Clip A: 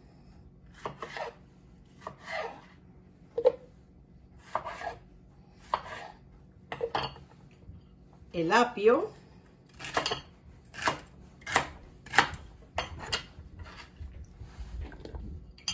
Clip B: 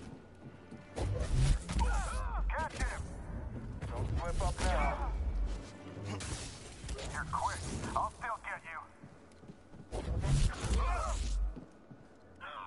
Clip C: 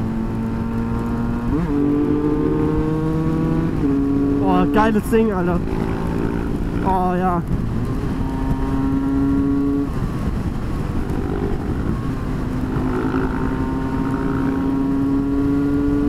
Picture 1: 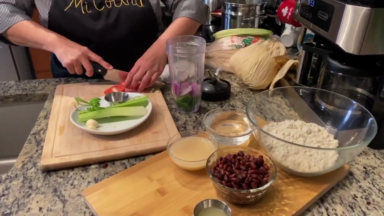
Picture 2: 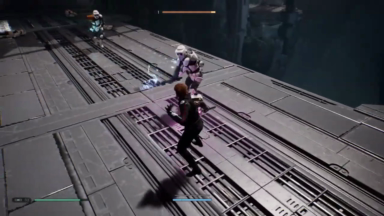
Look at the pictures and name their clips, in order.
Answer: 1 A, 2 B